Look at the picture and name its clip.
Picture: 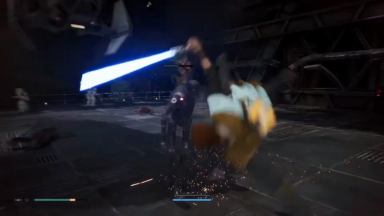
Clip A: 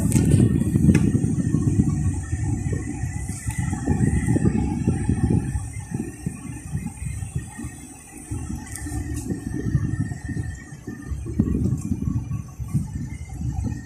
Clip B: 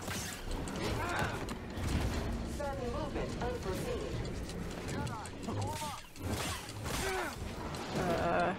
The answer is B